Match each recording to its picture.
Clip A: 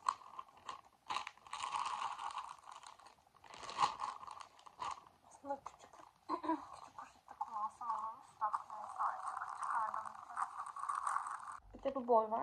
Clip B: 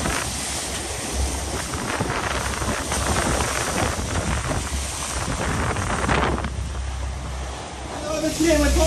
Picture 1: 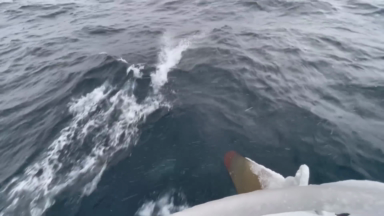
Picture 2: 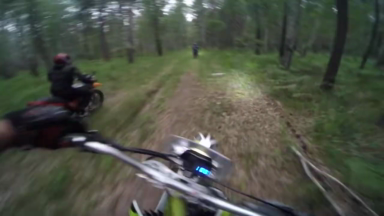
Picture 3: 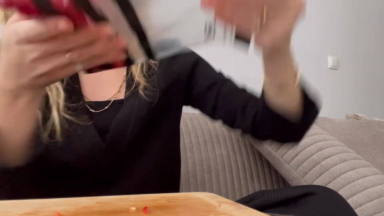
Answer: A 3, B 1